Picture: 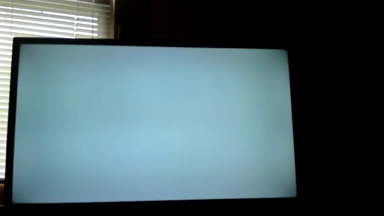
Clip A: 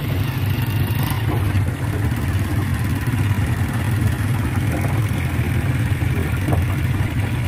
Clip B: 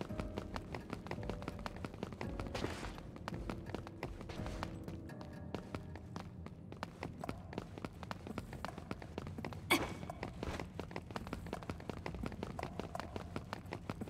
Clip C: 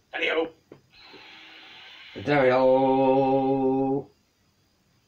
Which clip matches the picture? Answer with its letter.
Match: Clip C